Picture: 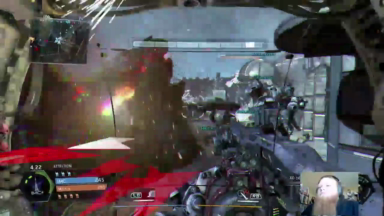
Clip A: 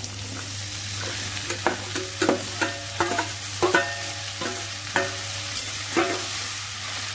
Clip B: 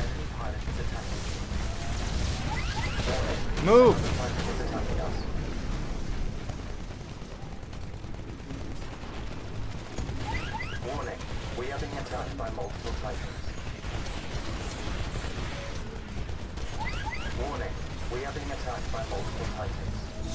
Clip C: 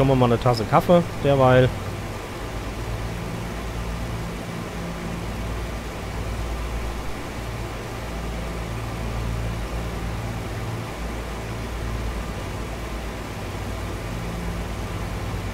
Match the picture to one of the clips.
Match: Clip B